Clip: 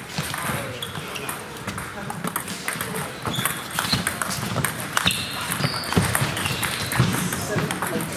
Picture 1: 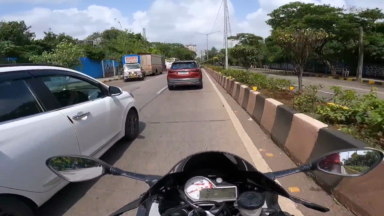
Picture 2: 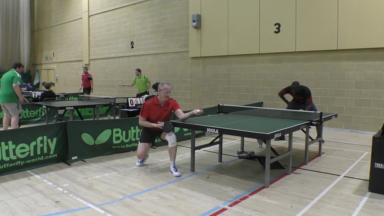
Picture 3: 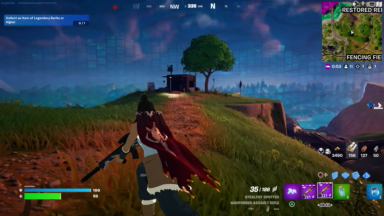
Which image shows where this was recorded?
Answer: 2